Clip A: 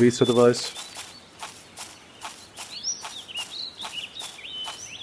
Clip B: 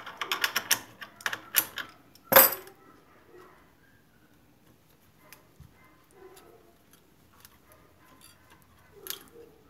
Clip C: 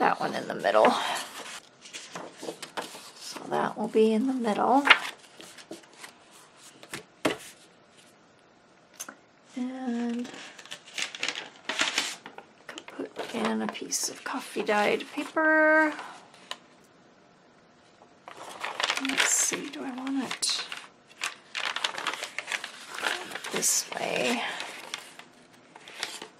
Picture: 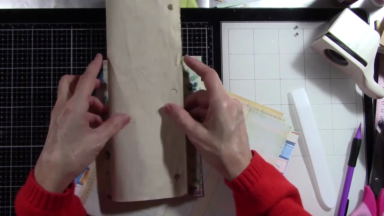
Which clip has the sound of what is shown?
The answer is C